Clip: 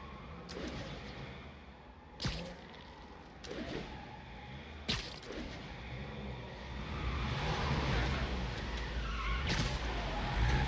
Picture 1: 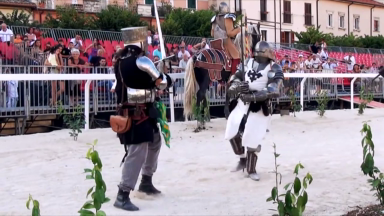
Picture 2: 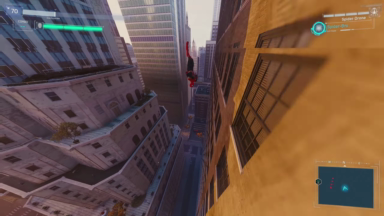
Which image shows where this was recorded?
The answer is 2